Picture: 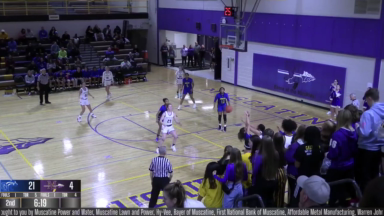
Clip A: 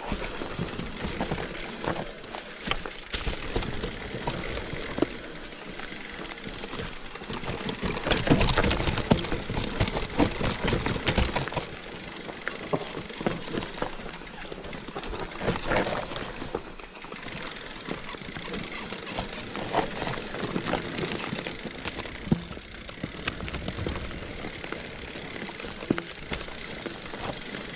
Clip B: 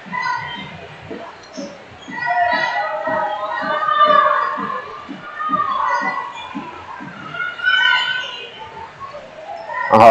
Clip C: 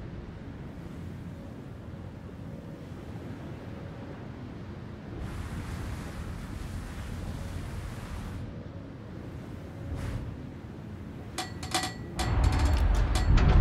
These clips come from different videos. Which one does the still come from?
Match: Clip B